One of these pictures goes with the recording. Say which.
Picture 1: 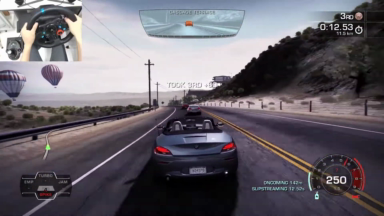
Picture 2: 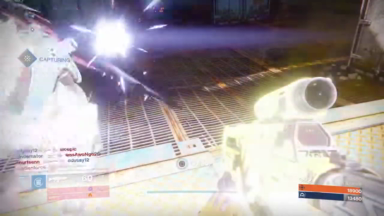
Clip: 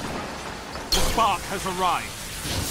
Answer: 2